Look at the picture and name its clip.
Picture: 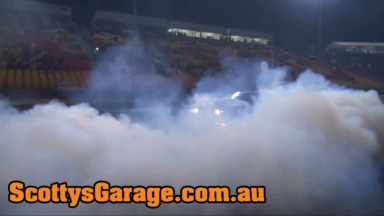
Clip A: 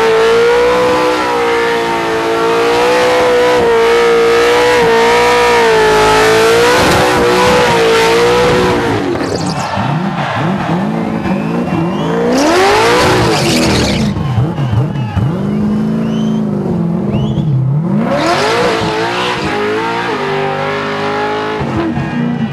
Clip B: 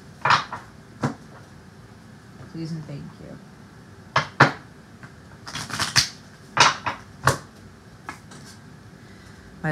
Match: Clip A